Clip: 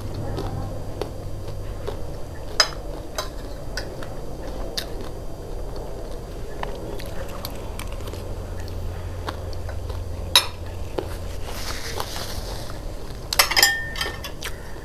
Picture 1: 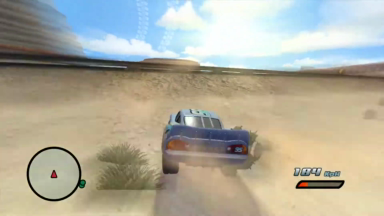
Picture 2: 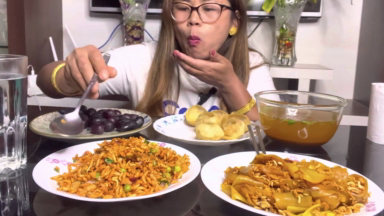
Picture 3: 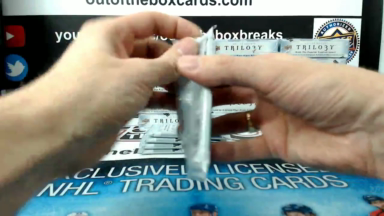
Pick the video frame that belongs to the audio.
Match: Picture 2